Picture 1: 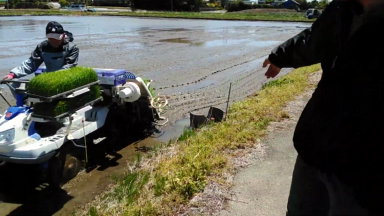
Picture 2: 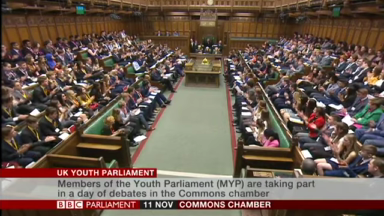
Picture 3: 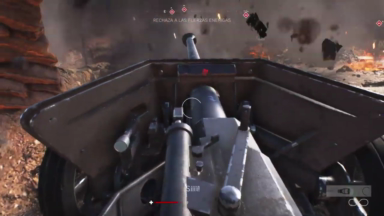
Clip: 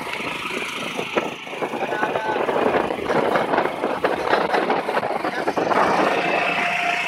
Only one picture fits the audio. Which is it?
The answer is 1